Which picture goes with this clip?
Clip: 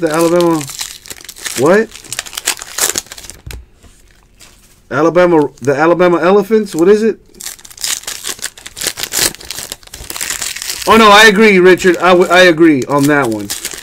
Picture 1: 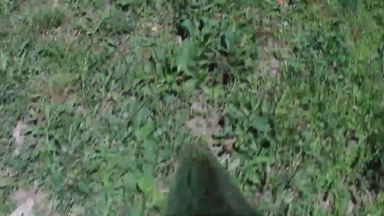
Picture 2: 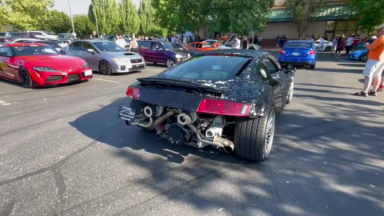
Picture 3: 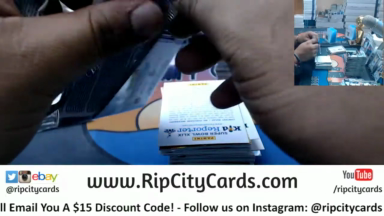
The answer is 3